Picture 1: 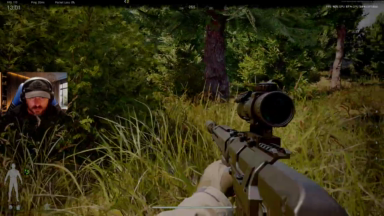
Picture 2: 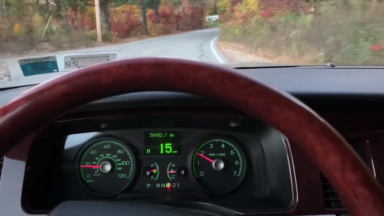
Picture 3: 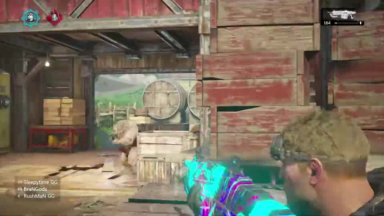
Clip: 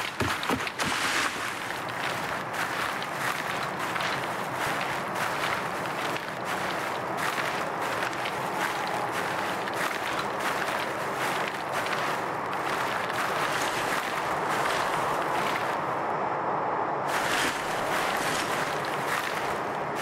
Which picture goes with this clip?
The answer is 1